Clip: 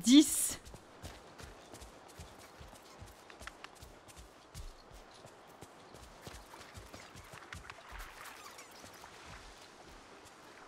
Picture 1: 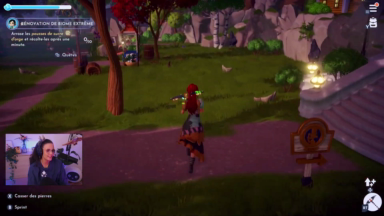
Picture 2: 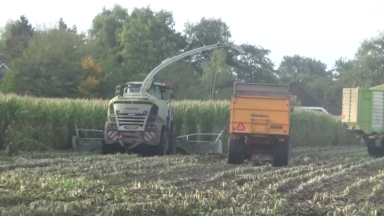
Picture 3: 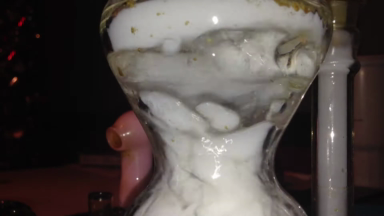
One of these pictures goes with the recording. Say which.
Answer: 1